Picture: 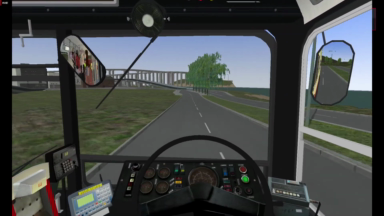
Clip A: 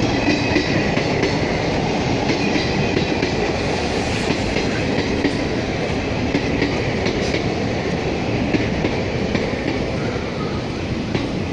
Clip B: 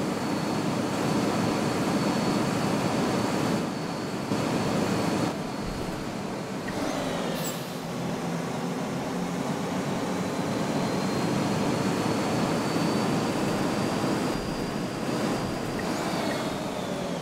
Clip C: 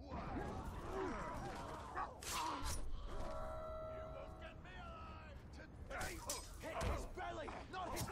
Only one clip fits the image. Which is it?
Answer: B